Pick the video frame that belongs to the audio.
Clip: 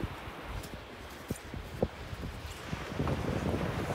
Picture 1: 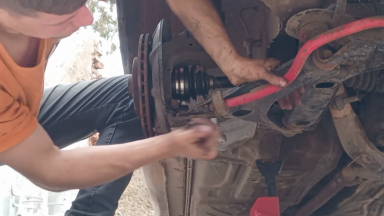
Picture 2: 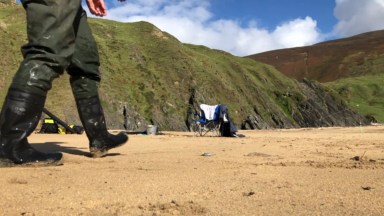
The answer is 2